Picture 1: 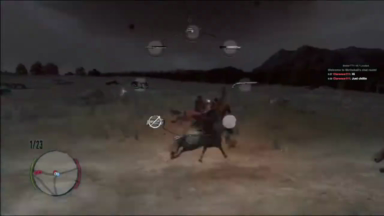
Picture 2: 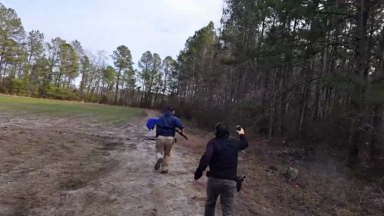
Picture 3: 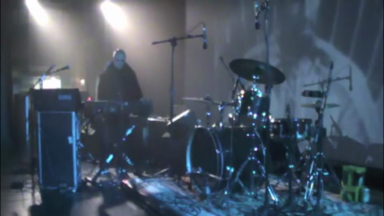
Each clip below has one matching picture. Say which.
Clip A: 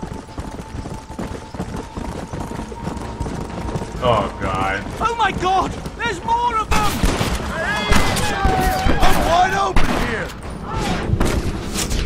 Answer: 1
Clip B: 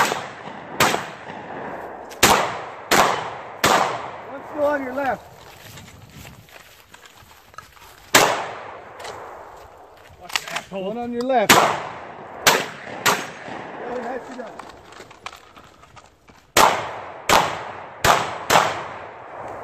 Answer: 2